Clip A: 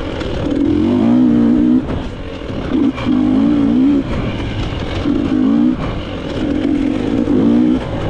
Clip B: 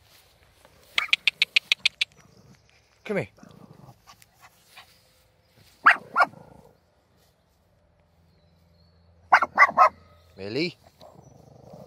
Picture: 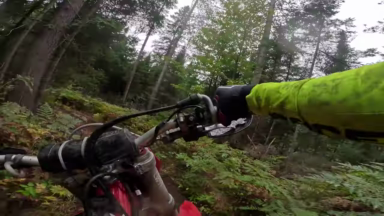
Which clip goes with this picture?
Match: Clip A